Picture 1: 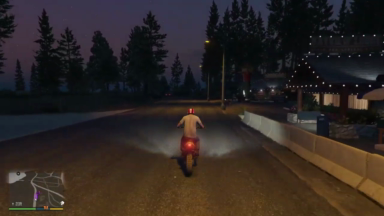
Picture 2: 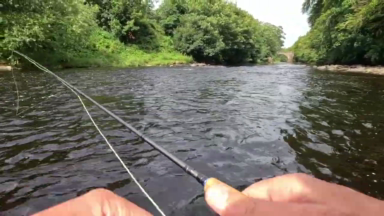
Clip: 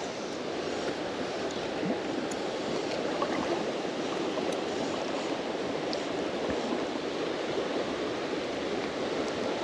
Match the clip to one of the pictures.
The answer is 2